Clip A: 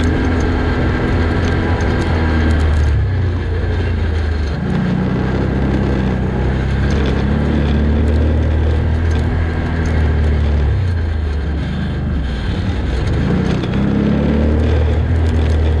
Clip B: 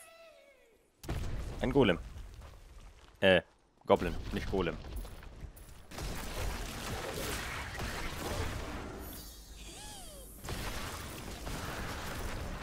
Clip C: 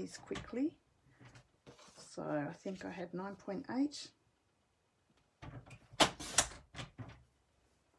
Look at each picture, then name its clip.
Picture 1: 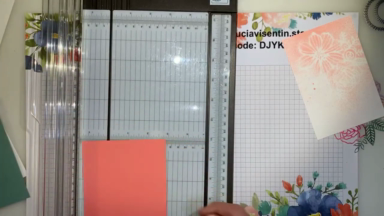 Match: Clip C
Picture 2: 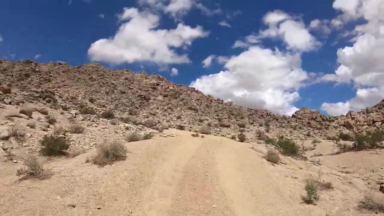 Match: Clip A